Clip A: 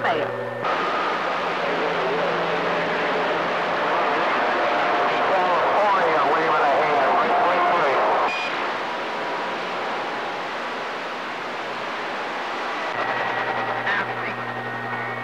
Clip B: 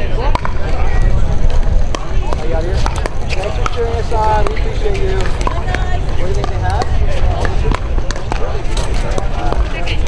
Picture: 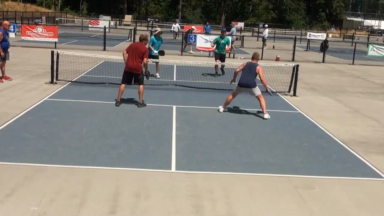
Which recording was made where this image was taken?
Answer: B